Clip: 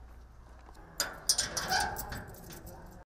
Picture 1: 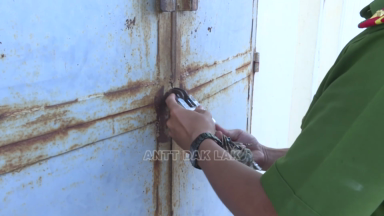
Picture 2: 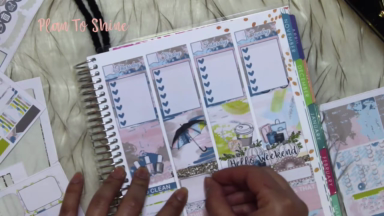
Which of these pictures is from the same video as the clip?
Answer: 1